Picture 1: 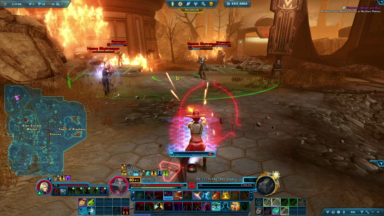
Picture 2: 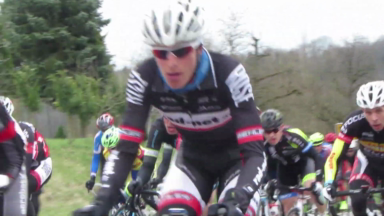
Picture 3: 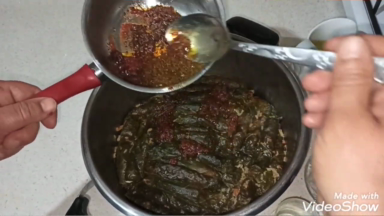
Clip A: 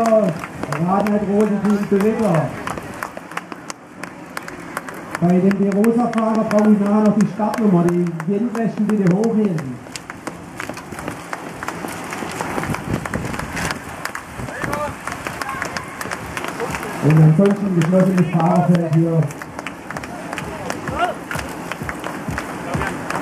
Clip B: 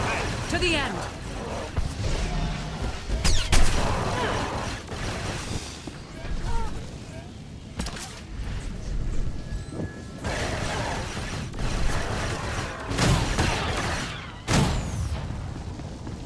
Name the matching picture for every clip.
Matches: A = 2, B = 1